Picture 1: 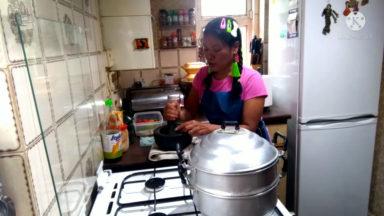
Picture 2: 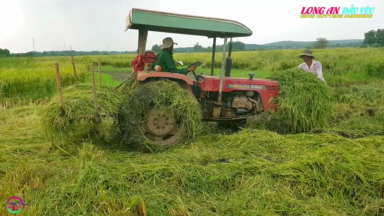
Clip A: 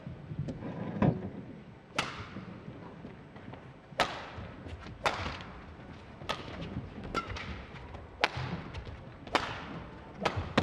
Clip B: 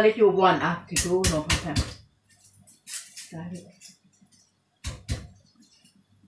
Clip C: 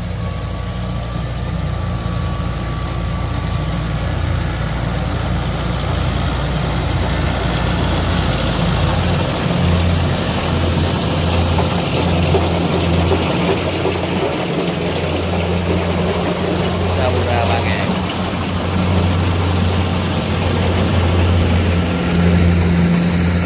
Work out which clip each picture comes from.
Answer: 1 B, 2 C